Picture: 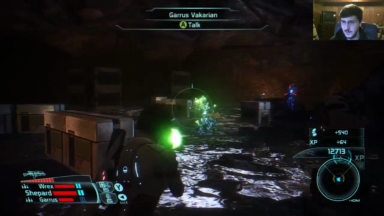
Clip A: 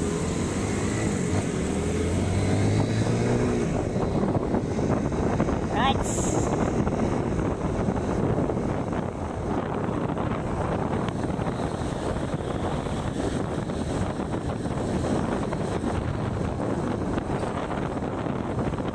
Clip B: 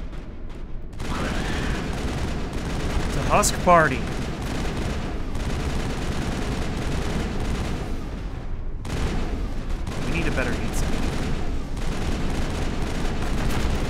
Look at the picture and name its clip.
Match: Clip B